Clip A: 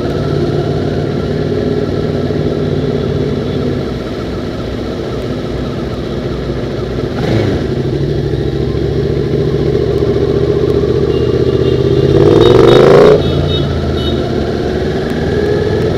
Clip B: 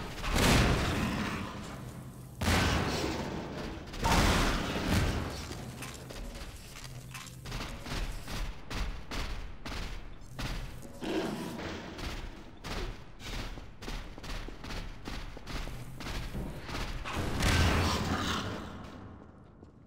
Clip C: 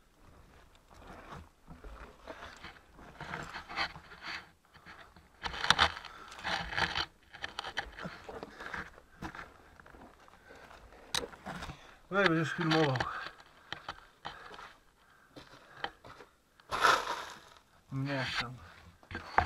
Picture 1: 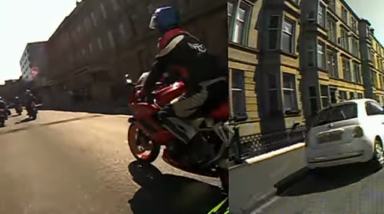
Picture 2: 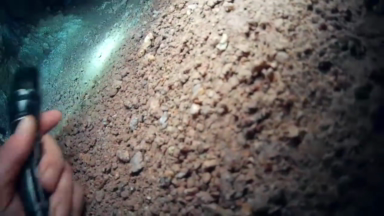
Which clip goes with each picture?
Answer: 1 A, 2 C